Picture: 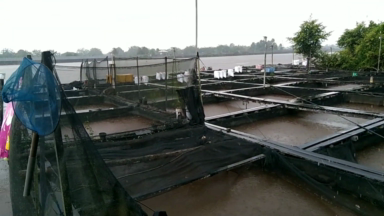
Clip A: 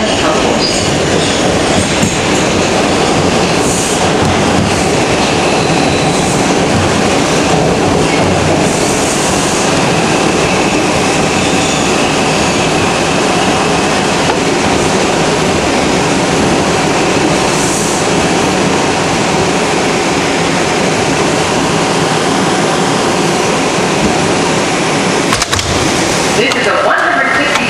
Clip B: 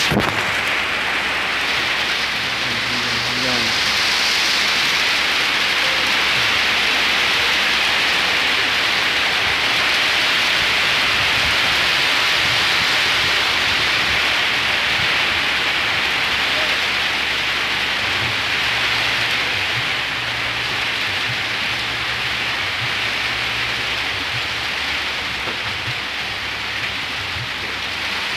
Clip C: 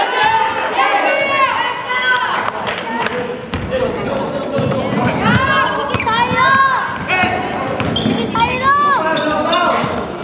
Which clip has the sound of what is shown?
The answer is B